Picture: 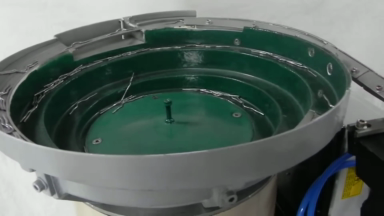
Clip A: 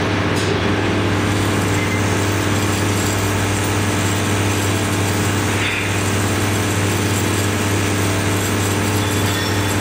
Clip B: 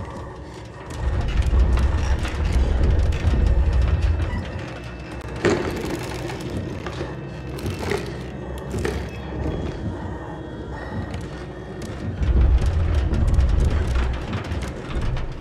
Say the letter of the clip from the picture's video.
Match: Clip A